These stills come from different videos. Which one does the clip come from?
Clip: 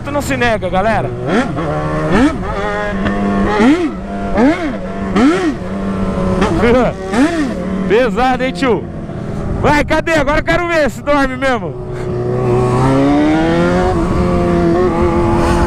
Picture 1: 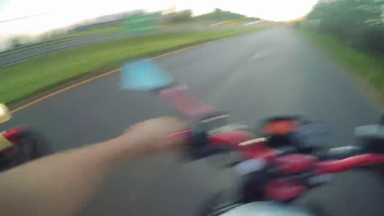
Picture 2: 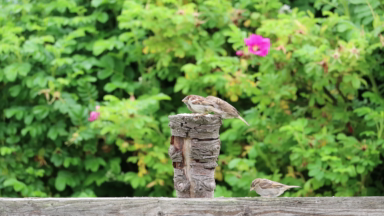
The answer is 1